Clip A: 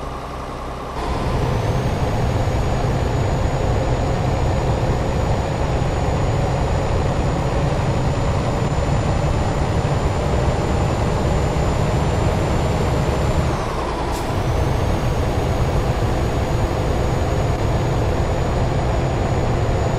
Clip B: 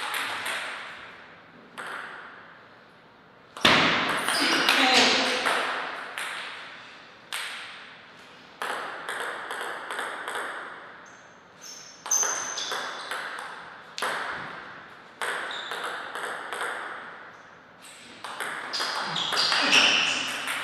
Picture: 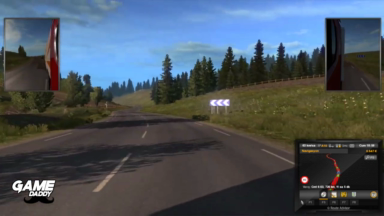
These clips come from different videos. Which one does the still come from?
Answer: A